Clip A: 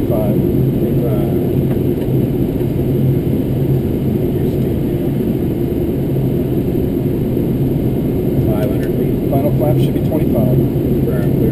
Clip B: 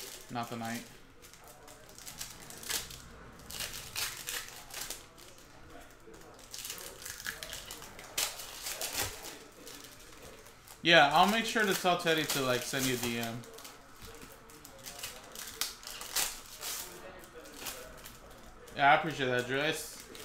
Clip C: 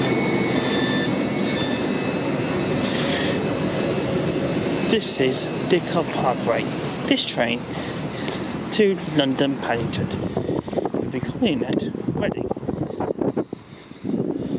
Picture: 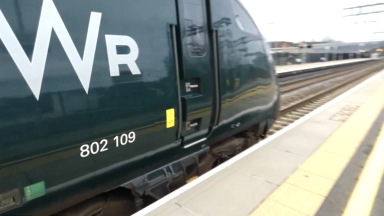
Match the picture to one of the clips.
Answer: C